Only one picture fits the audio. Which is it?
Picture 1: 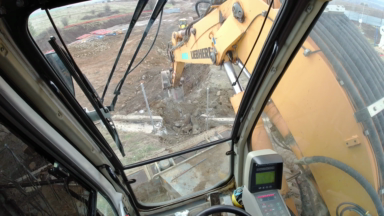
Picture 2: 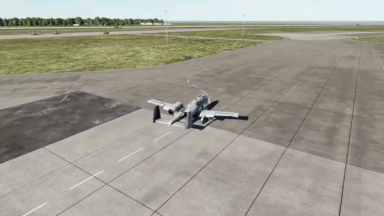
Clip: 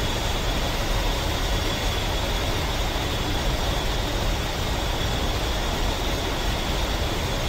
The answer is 2